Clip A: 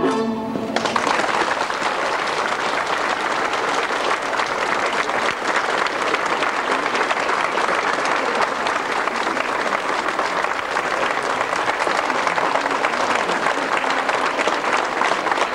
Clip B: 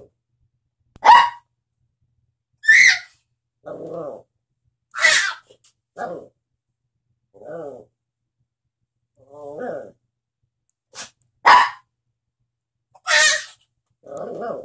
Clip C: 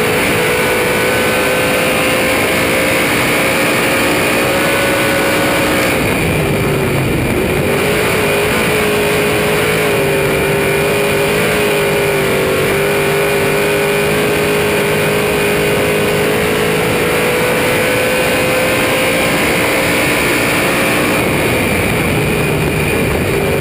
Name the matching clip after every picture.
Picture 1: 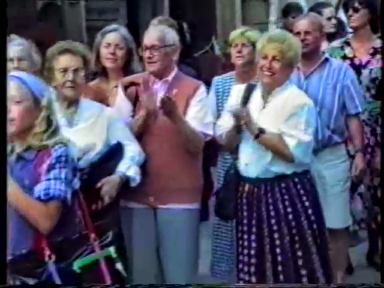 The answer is A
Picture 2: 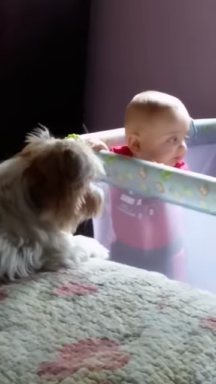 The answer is B